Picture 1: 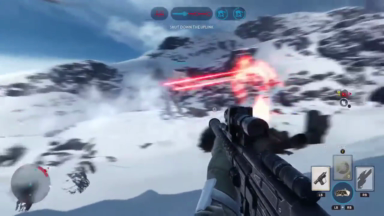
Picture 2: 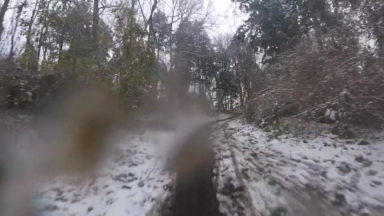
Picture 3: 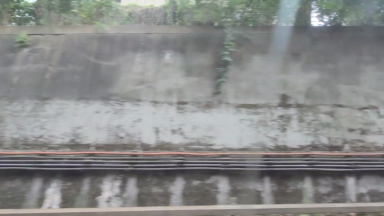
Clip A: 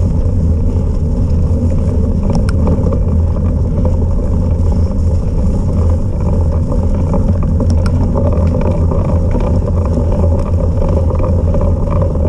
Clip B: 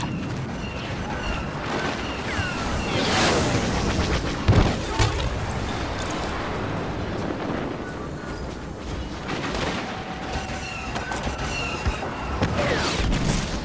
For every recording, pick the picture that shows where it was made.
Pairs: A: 2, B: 1